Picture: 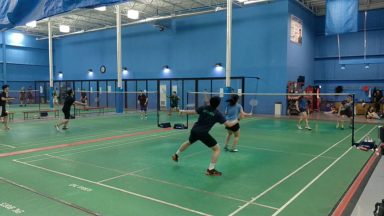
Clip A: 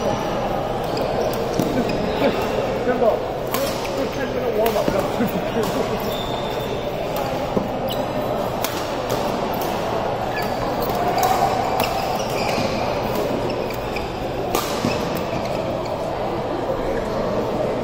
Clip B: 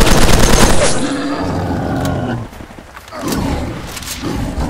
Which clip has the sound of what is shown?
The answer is A